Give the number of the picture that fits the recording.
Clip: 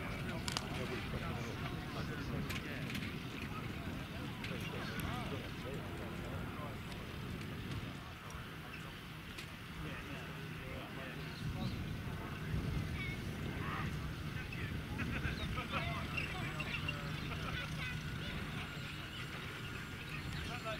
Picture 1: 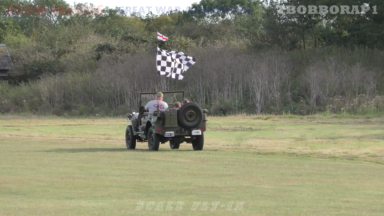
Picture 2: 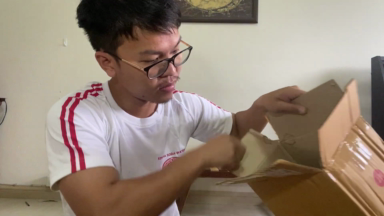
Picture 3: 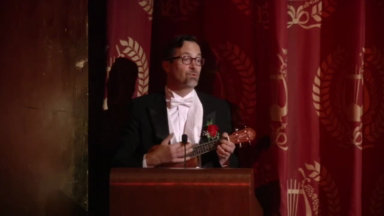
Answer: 1